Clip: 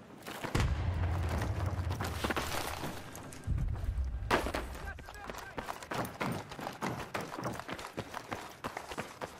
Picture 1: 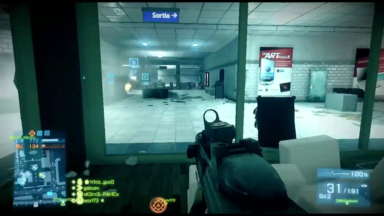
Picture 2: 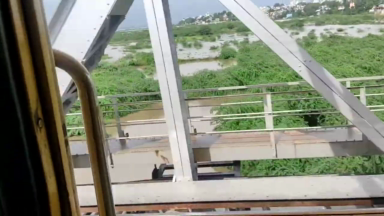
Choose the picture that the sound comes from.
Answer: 1